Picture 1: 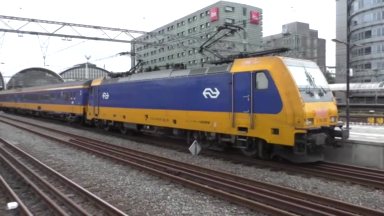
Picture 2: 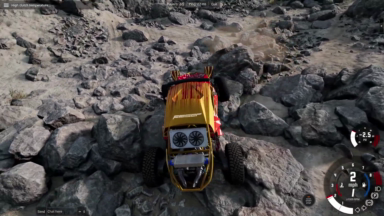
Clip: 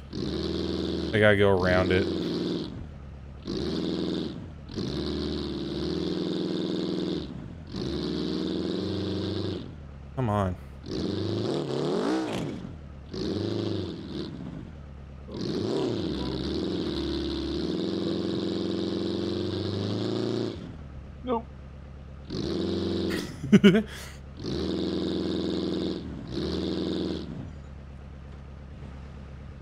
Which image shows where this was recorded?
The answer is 2